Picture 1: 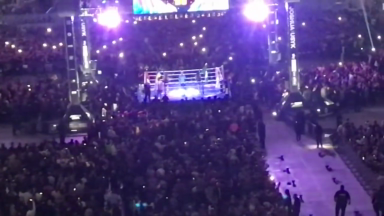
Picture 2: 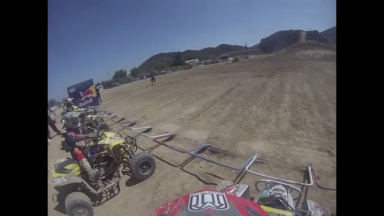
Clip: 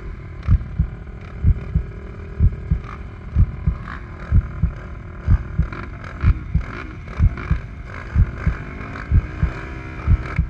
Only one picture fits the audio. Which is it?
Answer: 2